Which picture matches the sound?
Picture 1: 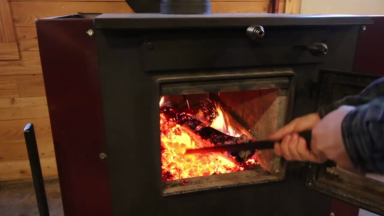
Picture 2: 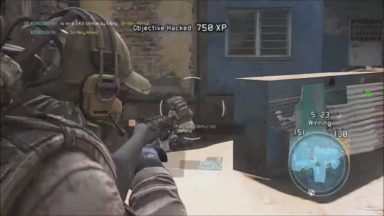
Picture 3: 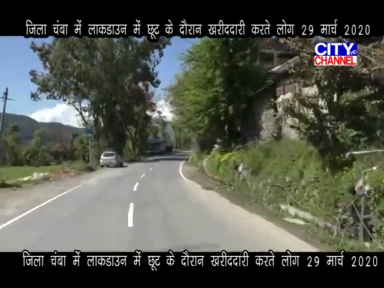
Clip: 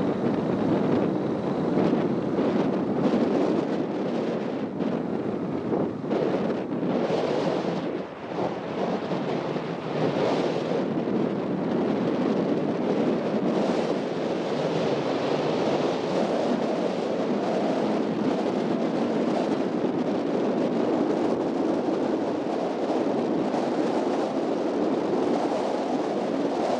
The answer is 3